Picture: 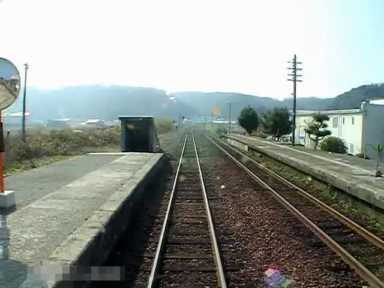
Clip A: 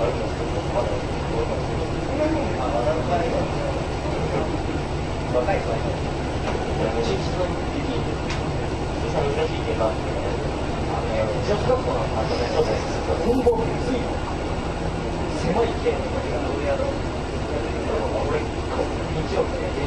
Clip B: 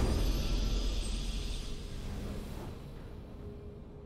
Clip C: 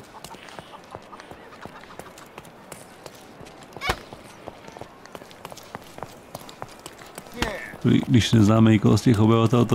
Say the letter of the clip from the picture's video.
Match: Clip A